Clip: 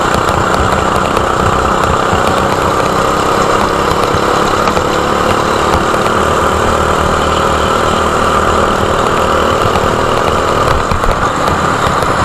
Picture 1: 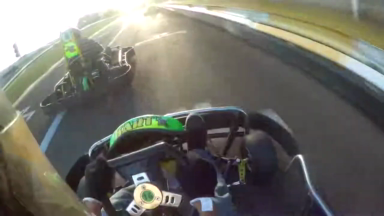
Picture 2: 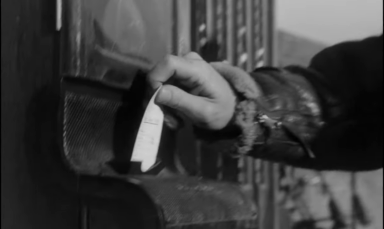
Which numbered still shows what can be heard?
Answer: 1